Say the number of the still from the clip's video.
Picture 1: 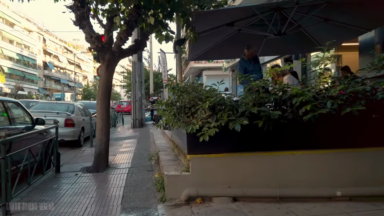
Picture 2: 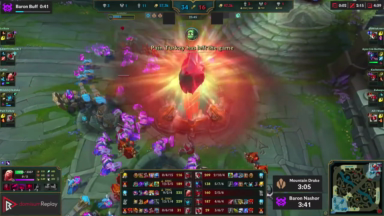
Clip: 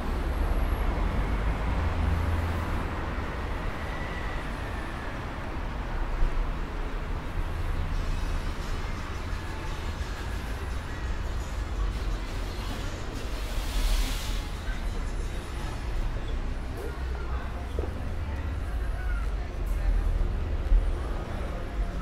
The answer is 1